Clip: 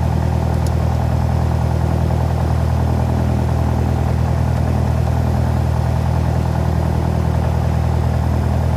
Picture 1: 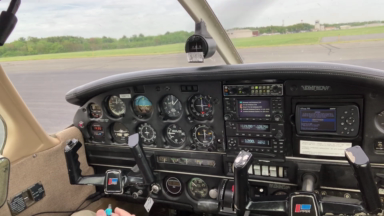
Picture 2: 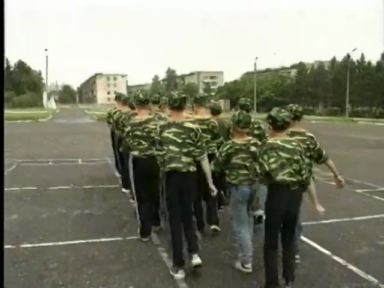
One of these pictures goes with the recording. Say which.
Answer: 1